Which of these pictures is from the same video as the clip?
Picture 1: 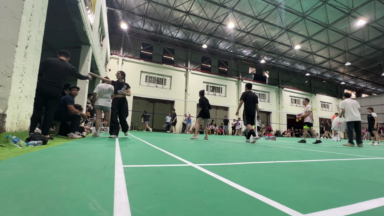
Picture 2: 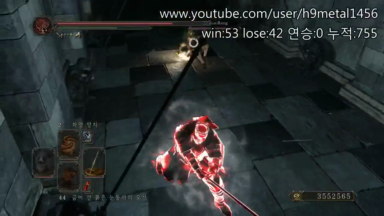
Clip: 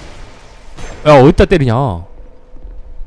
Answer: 2